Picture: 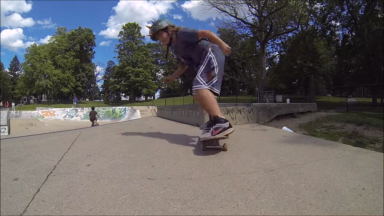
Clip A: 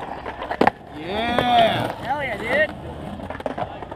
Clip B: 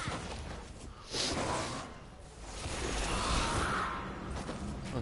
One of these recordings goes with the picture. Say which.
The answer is A